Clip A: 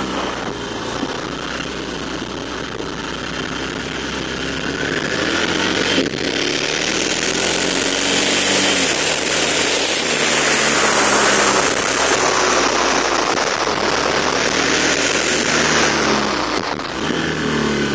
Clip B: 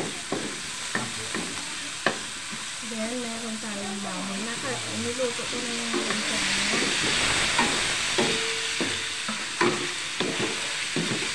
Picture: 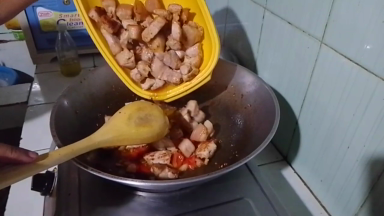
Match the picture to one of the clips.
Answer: B